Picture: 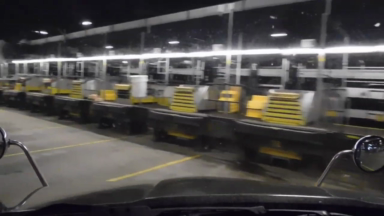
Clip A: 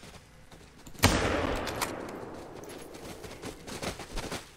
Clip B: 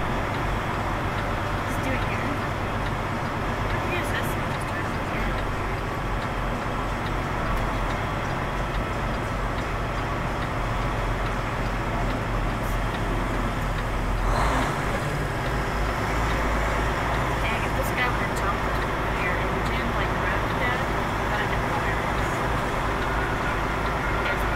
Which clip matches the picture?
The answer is B